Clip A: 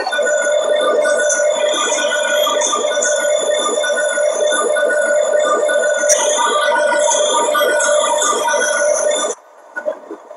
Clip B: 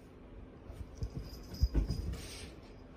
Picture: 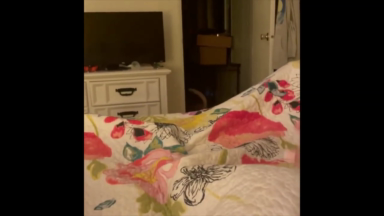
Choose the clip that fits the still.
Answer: B